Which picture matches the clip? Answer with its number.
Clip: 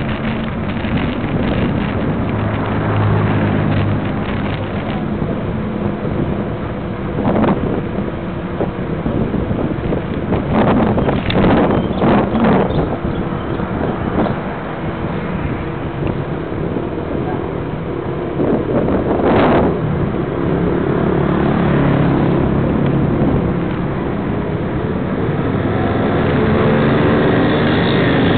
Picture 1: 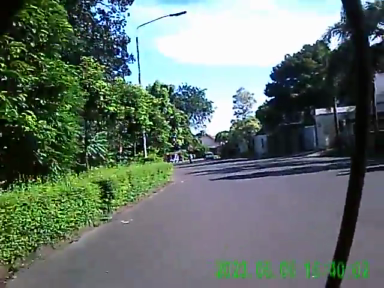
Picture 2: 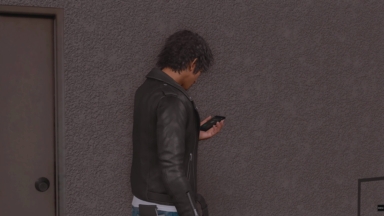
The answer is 1